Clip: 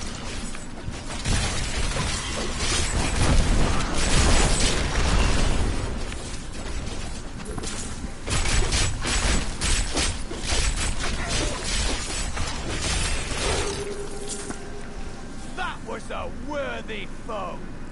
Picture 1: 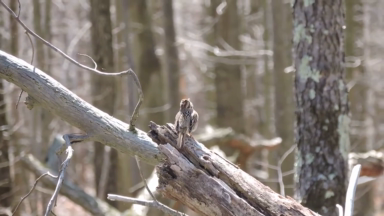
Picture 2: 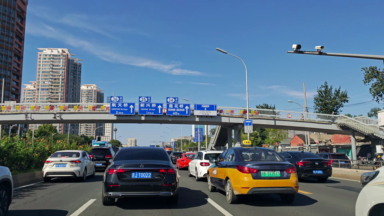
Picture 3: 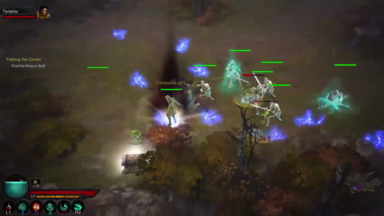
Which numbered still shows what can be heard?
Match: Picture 3